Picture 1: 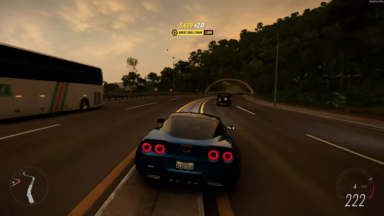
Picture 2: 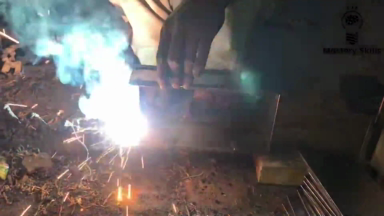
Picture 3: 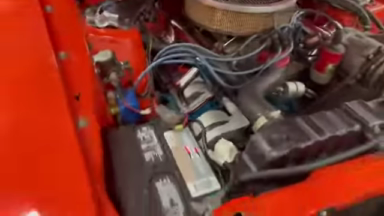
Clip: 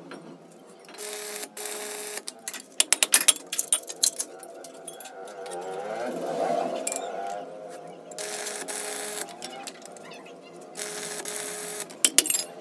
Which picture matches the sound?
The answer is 2